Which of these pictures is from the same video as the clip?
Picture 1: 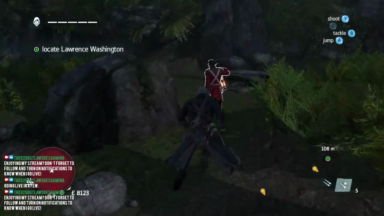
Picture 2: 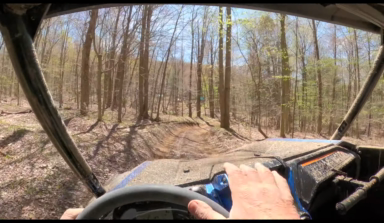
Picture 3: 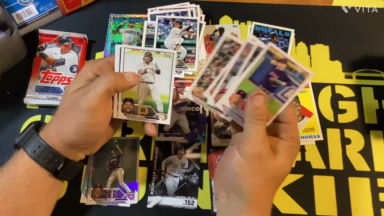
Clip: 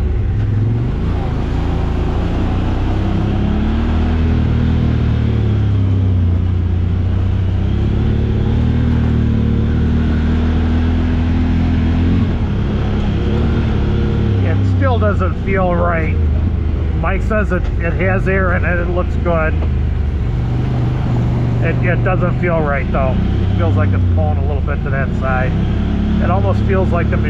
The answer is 2